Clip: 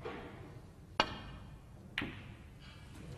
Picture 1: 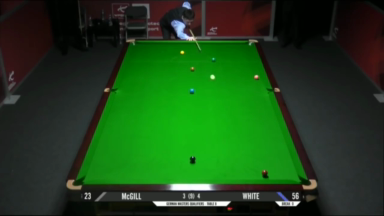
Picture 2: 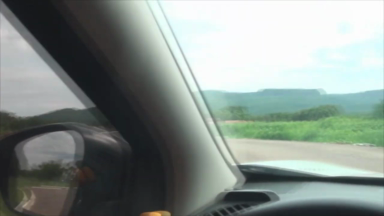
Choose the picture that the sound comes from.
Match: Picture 1